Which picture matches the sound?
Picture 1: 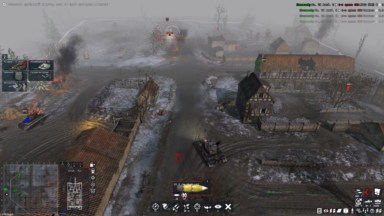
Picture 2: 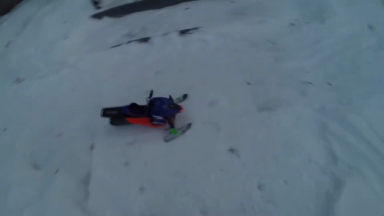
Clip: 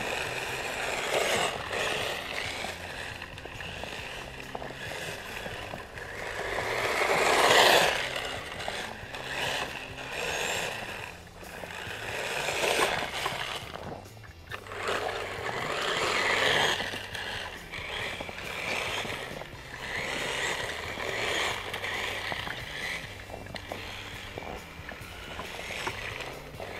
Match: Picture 2